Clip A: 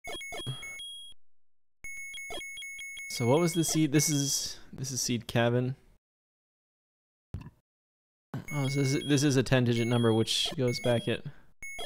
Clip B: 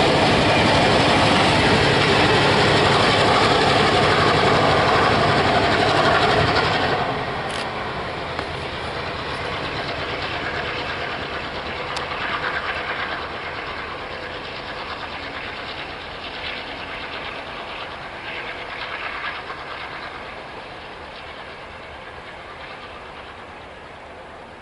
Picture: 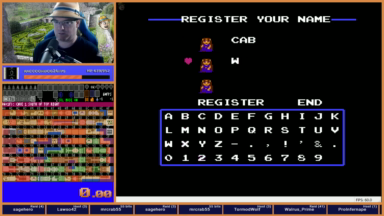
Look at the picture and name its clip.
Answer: A